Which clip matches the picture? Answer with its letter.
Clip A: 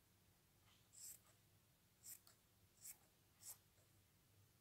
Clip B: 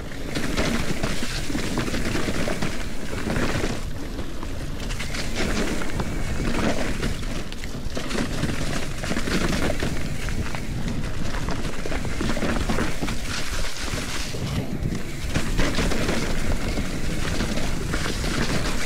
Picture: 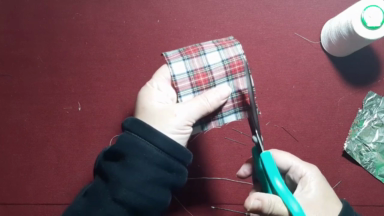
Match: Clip A